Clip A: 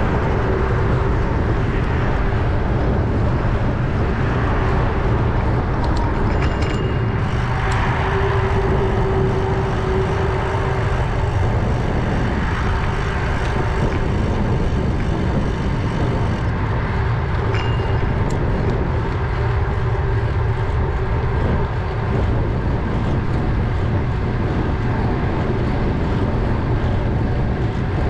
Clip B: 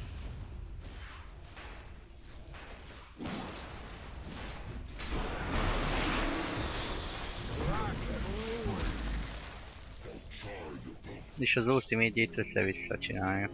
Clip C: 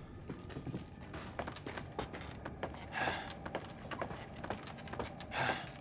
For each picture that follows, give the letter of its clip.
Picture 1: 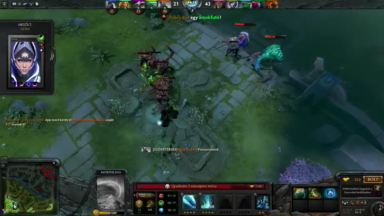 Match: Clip B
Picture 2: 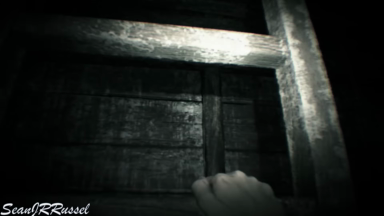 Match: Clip C